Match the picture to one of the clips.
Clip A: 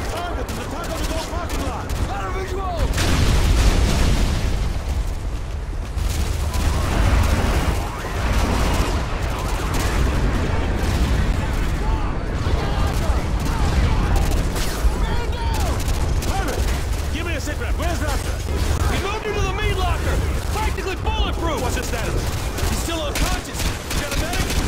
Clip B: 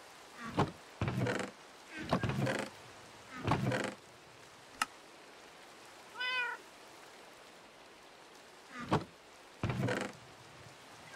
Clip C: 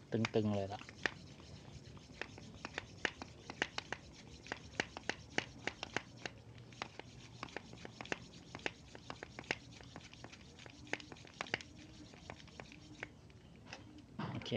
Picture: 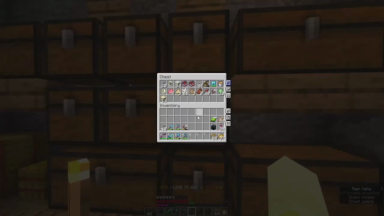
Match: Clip B